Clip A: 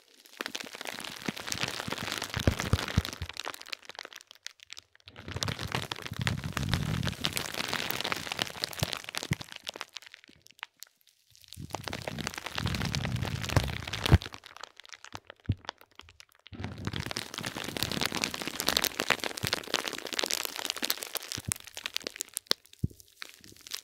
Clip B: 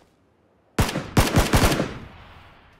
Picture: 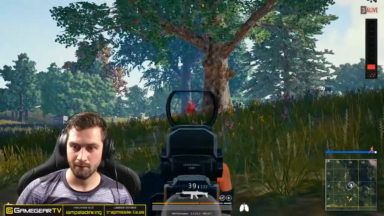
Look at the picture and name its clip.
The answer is B